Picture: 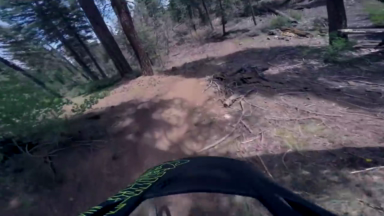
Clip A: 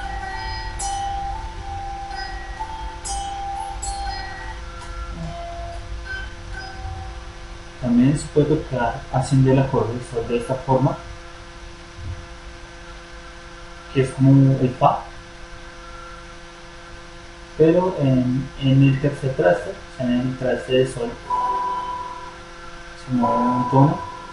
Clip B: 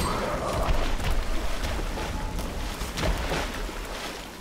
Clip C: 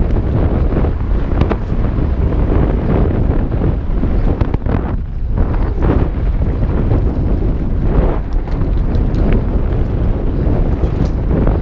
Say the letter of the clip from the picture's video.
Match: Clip C